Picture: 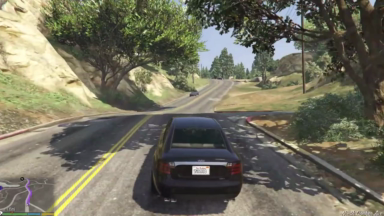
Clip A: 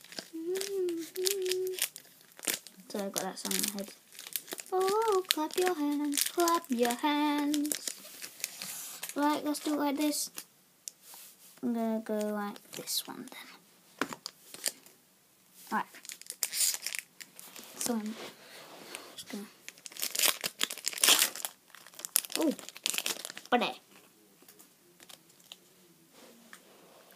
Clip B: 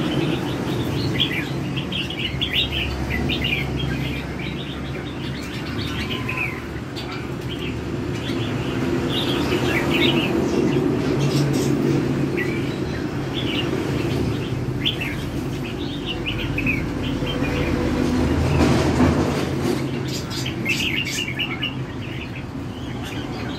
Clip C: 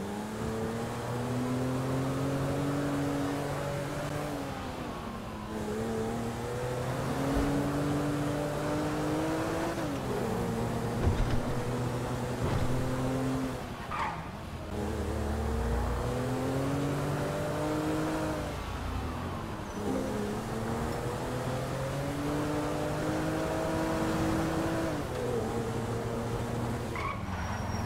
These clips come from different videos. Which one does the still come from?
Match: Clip C